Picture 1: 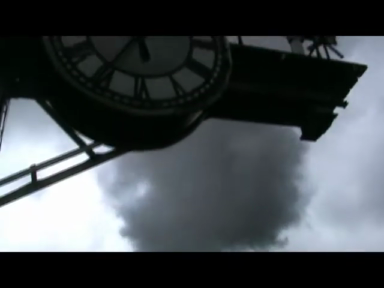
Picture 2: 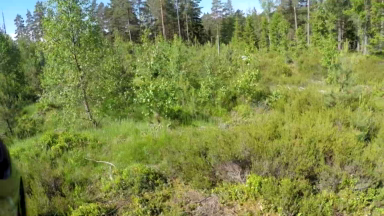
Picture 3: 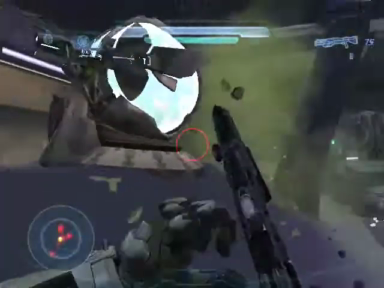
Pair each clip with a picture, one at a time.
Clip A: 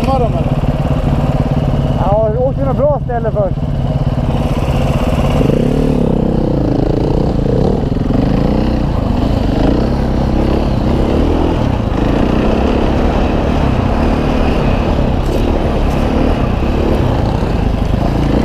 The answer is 2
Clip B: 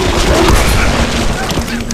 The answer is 3